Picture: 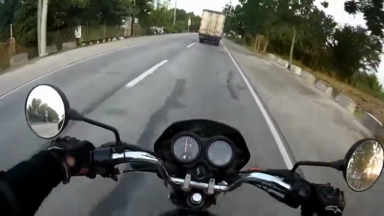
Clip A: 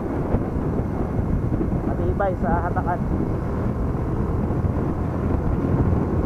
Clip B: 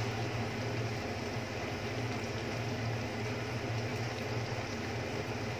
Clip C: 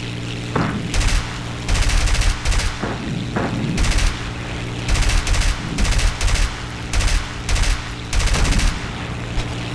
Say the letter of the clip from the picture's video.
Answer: A